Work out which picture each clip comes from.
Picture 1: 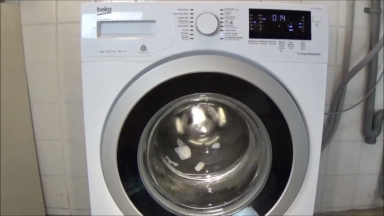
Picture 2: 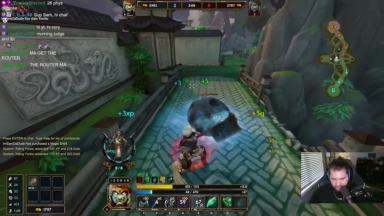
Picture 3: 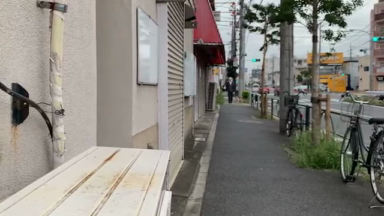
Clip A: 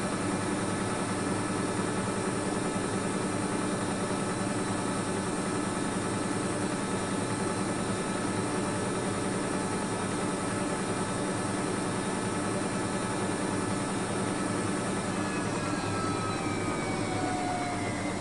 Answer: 1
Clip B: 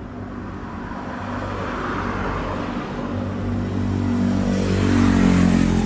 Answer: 3